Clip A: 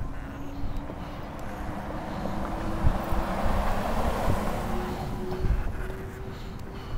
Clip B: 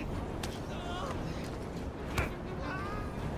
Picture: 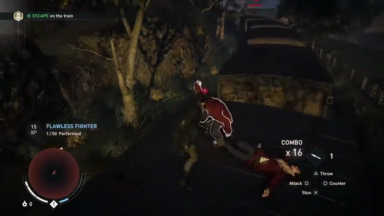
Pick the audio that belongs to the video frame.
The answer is B